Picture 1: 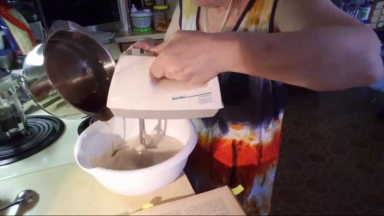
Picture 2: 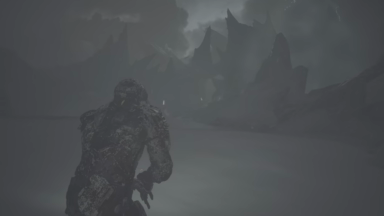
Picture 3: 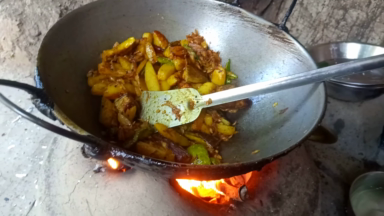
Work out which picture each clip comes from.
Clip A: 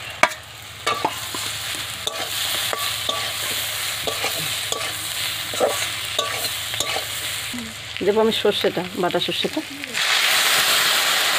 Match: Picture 3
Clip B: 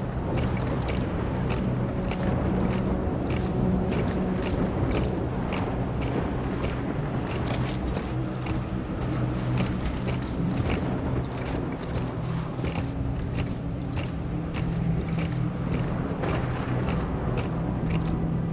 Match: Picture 2